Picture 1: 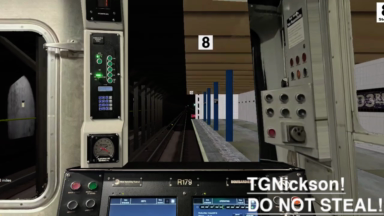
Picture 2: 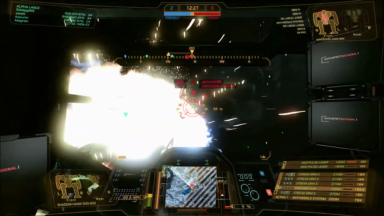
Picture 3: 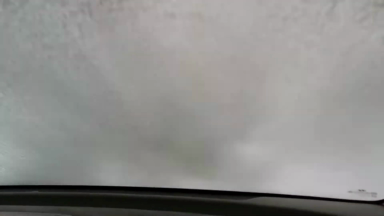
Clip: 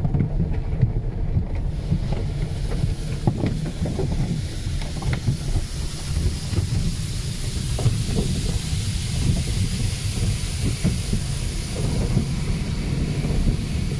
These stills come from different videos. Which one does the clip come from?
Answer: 3